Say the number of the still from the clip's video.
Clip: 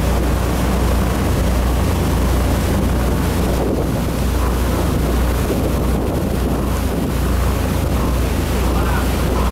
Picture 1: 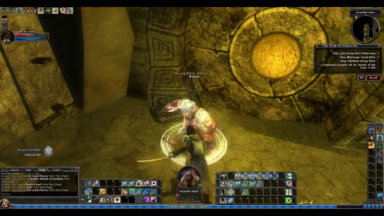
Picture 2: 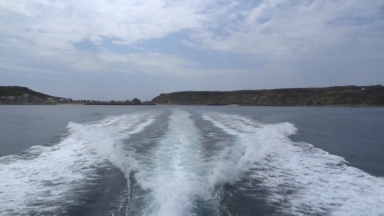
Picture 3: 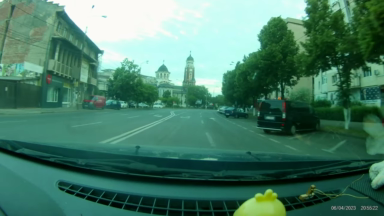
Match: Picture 2